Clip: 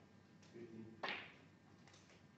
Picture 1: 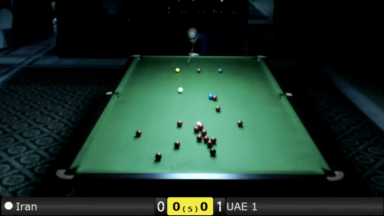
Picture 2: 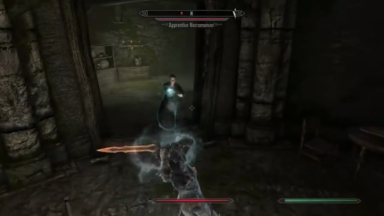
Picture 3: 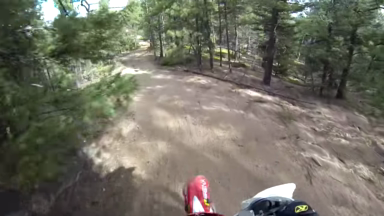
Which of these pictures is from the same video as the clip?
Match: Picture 1